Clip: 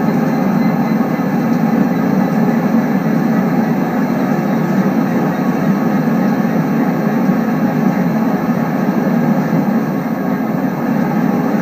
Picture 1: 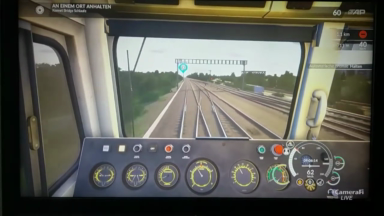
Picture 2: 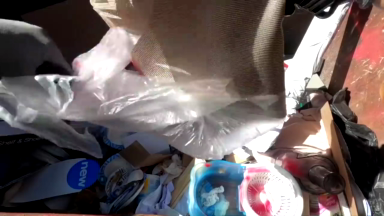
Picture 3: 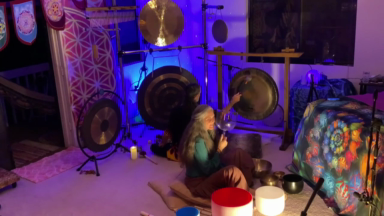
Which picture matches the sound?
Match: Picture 1